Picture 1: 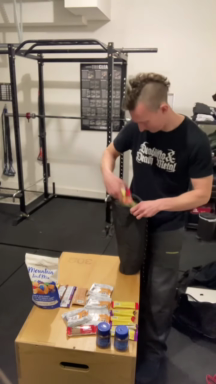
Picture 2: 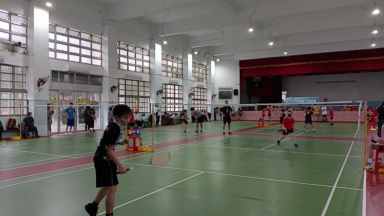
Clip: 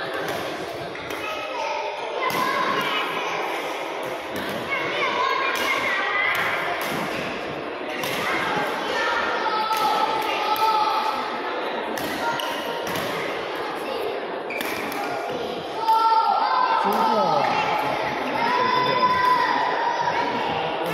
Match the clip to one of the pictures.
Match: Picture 2